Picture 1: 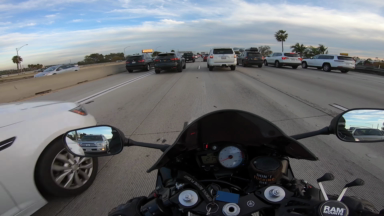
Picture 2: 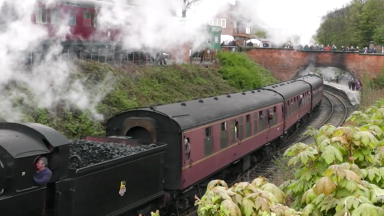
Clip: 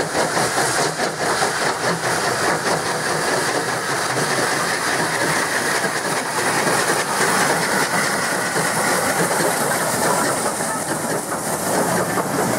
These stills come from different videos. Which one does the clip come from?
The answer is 2